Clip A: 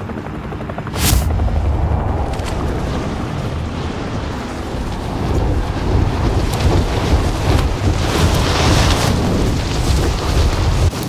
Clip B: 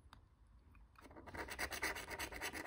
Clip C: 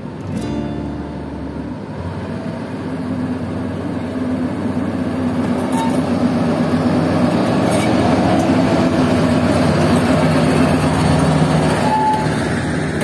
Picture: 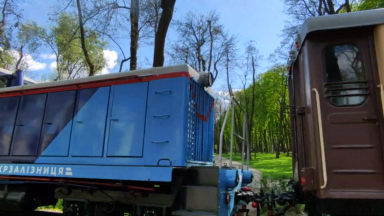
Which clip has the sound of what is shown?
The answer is C